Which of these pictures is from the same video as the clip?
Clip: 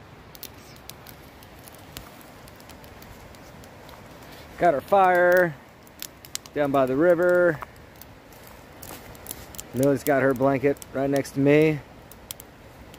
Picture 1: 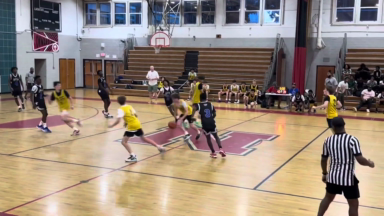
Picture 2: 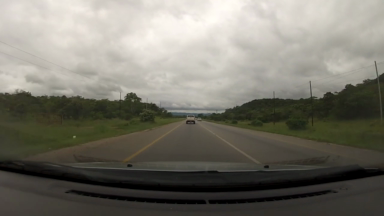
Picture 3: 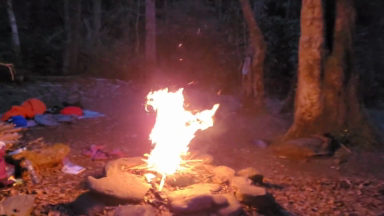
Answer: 3